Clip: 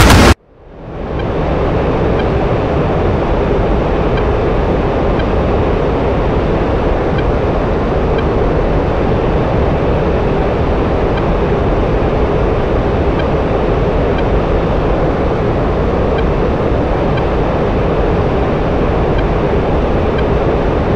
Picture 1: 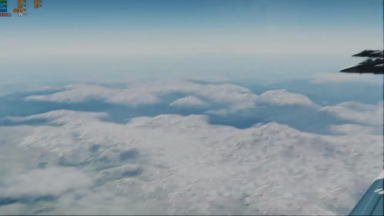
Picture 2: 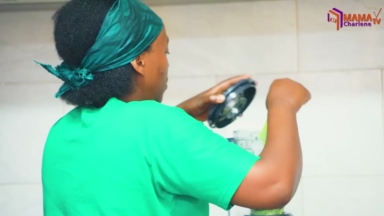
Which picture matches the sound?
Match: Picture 1